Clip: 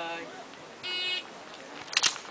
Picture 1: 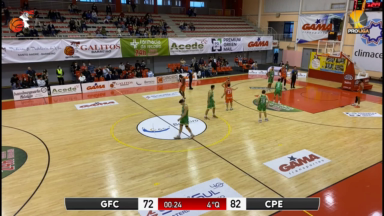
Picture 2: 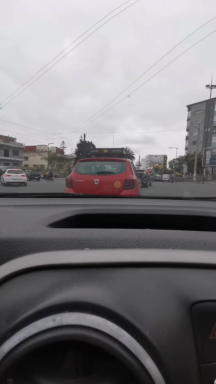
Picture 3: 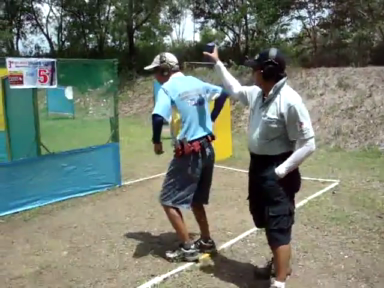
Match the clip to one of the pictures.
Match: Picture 3